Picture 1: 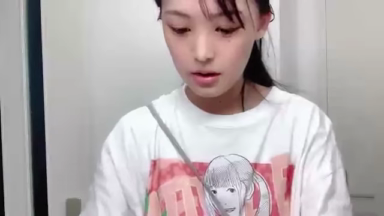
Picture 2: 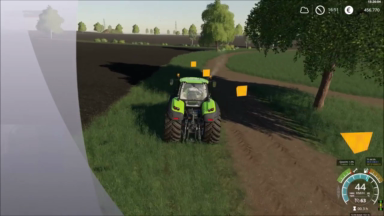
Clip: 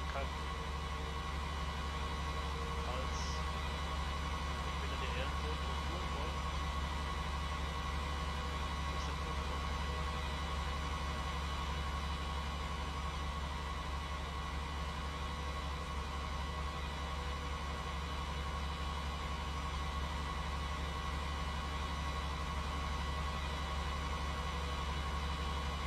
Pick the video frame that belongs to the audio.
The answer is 2